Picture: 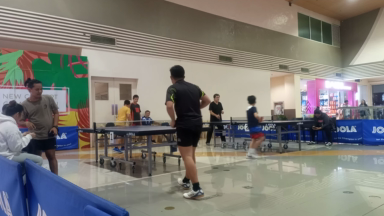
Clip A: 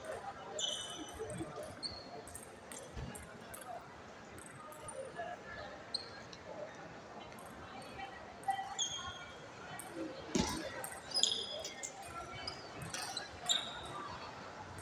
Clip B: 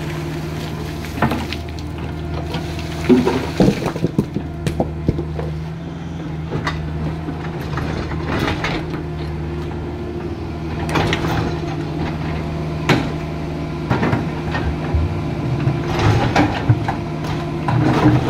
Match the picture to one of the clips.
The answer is A